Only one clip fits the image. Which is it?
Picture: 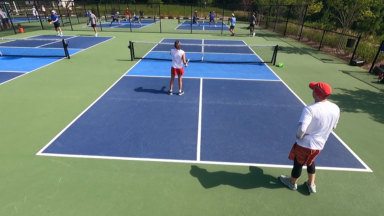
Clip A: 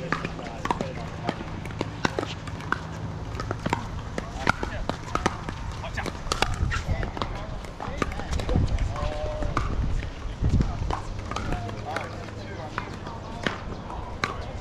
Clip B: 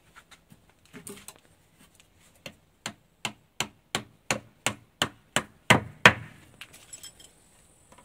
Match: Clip A